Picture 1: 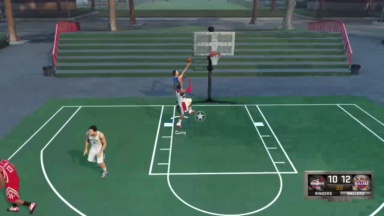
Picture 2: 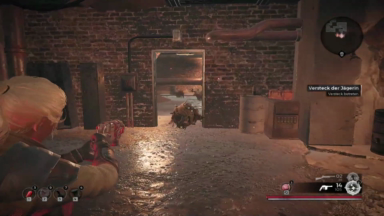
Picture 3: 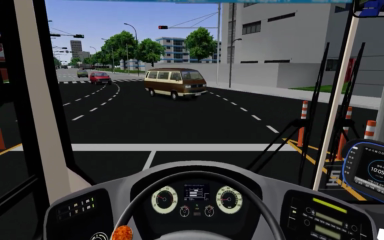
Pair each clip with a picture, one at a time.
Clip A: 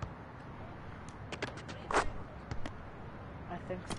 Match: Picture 1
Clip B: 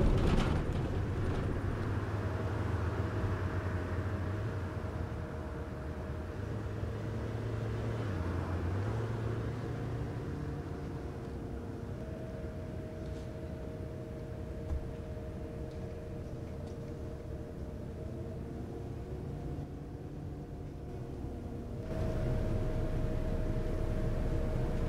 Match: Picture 3